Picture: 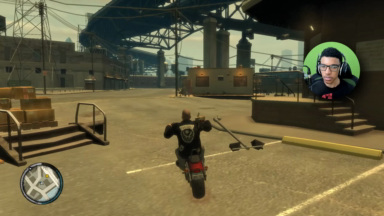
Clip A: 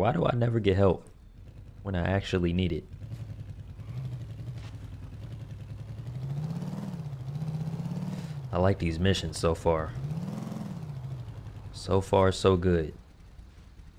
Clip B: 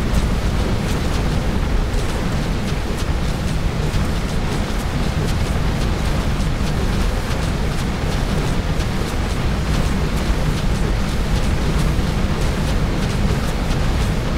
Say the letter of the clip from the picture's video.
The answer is A